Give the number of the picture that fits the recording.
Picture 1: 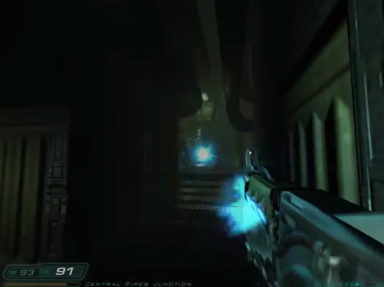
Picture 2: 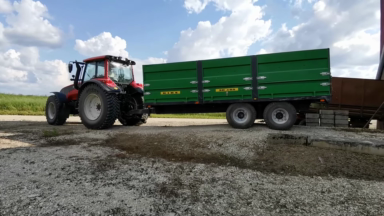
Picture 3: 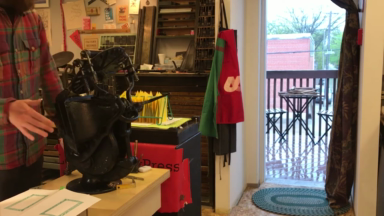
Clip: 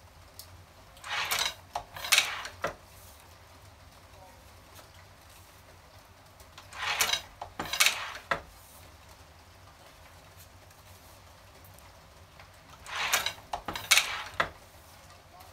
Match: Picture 3